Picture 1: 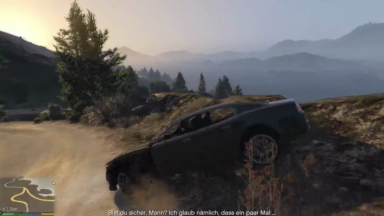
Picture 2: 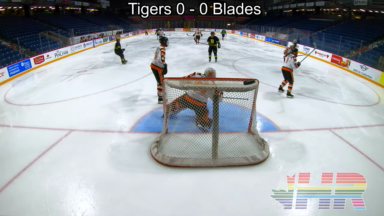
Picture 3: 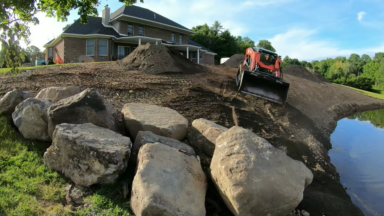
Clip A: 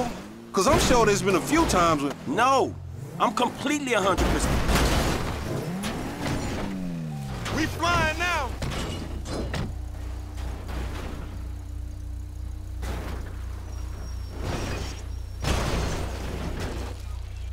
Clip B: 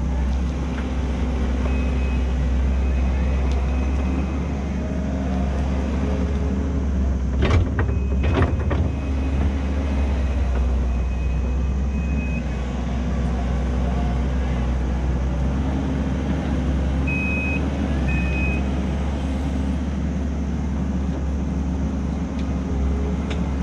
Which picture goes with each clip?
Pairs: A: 1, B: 3